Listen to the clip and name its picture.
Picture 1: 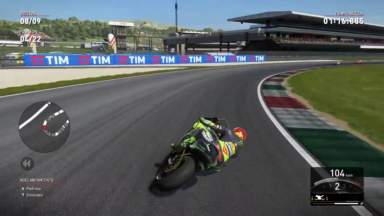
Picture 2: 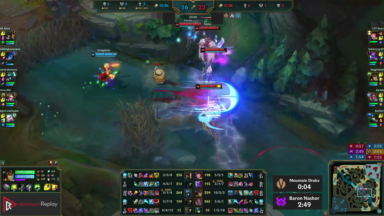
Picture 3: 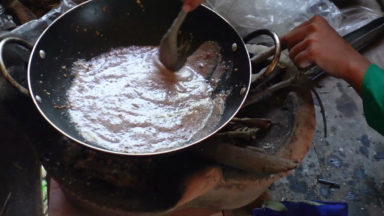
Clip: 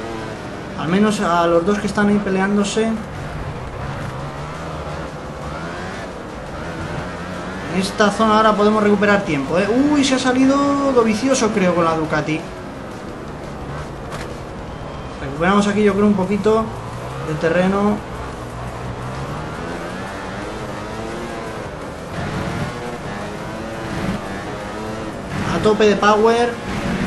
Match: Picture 1